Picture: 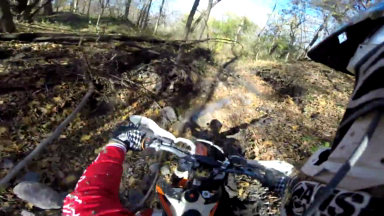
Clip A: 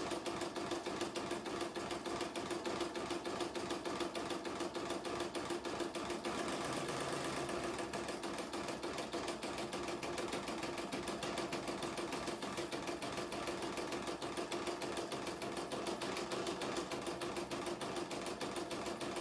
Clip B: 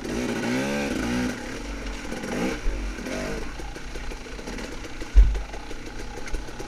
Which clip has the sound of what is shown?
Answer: B